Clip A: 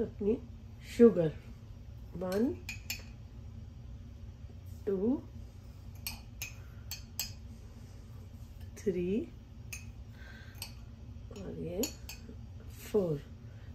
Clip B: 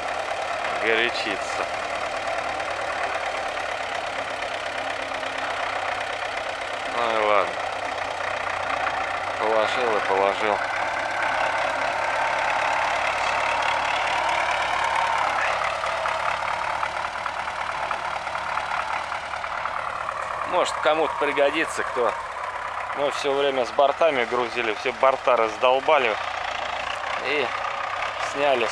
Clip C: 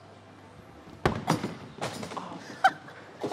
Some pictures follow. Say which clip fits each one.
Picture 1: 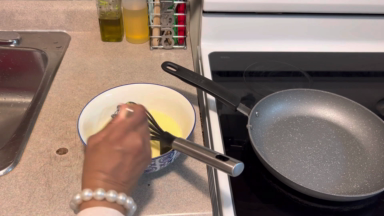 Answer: A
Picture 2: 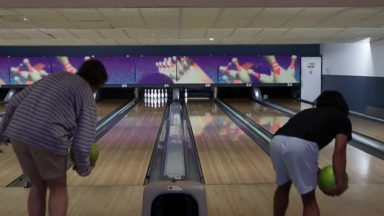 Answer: C